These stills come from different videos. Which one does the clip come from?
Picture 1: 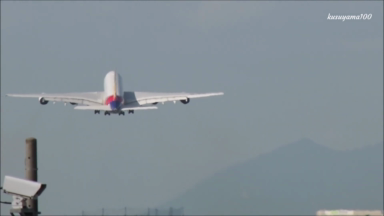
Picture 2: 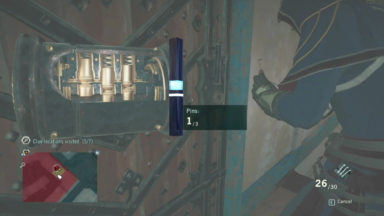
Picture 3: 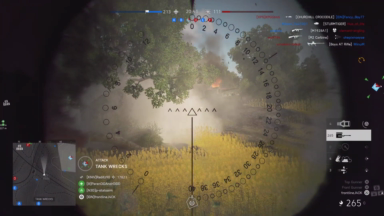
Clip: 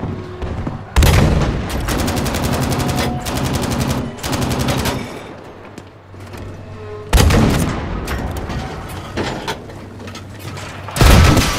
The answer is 3